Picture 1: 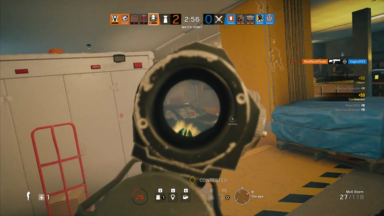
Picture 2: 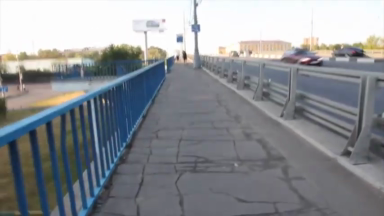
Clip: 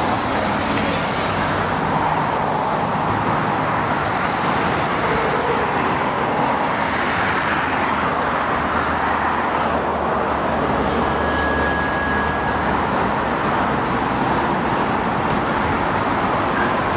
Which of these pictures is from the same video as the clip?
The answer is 2